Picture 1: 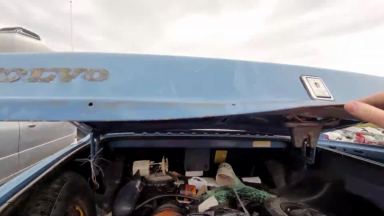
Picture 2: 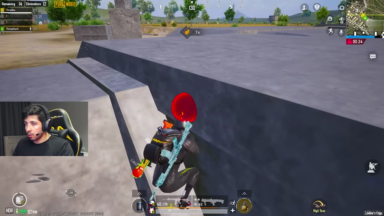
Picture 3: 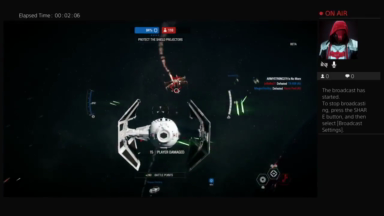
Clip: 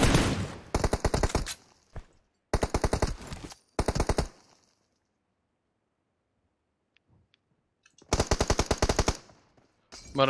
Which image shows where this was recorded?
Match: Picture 2